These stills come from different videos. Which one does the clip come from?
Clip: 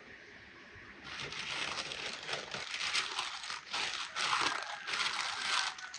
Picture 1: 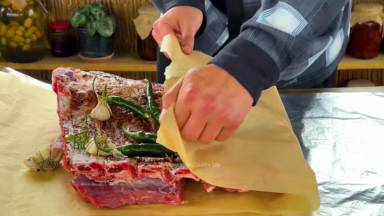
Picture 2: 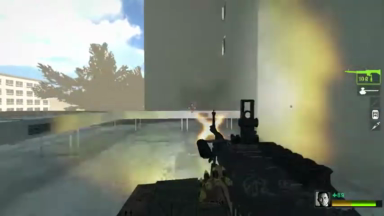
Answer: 1